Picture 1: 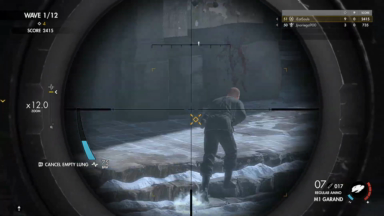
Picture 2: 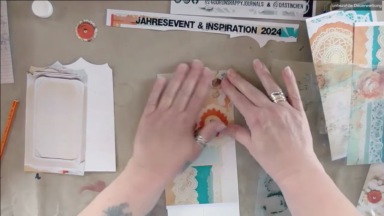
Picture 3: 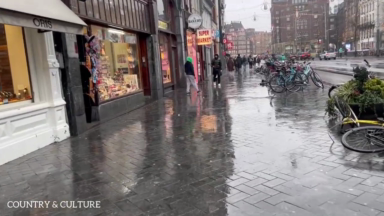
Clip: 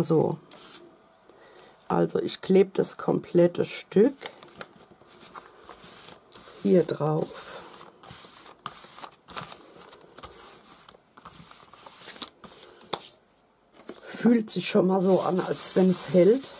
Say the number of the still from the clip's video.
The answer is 2